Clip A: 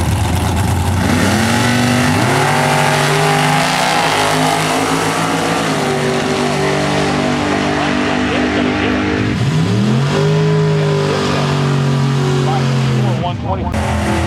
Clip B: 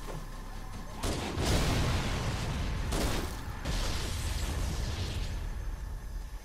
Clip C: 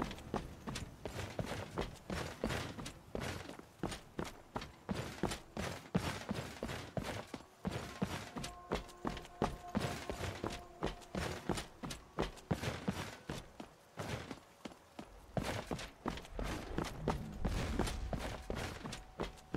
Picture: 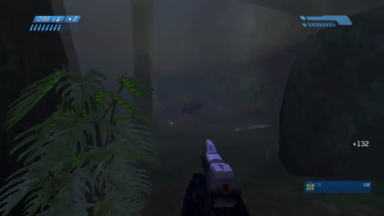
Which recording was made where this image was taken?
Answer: B